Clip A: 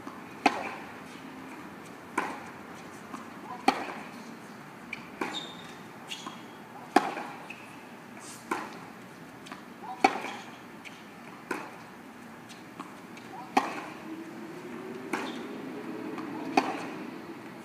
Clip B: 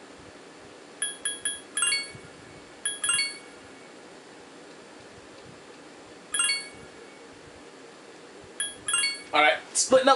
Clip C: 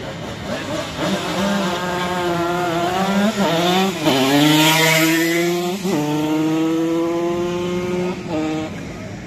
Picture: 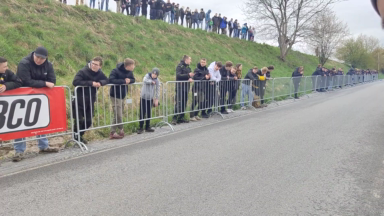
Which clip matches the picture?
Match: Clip C